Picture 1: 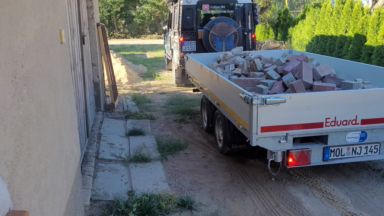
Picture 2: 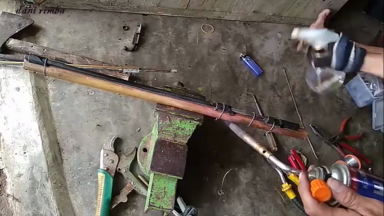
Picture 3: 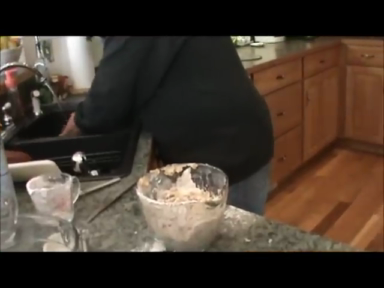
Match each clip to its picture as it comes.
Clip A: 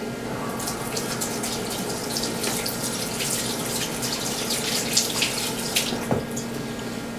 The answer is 3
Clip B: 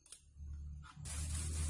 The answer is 2